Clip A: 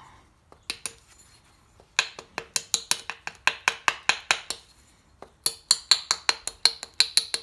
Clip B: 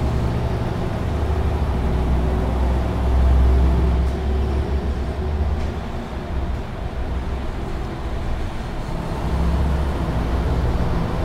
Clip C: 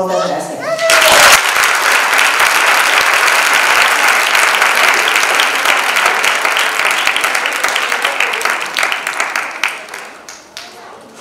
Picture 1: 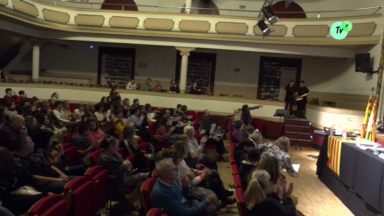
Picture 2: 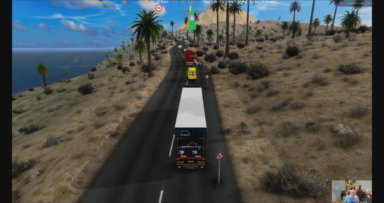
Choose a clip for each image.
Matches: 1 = C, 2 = B